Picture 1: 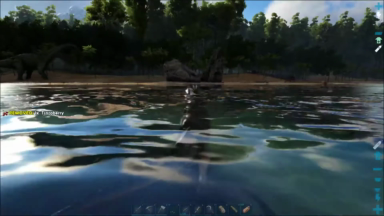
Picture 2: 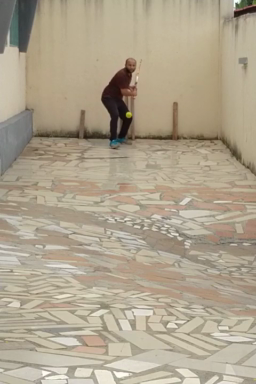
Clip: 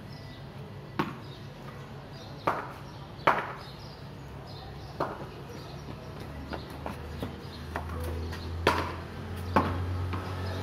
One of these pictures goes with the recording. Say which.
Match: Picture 2